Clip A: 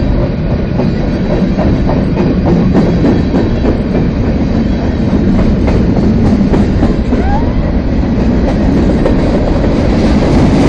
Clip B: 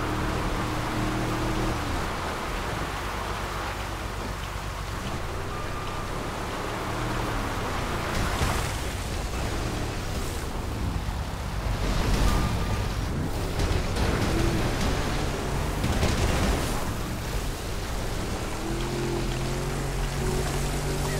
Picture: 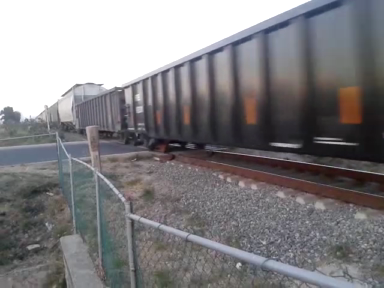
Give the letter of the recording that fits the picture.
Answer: A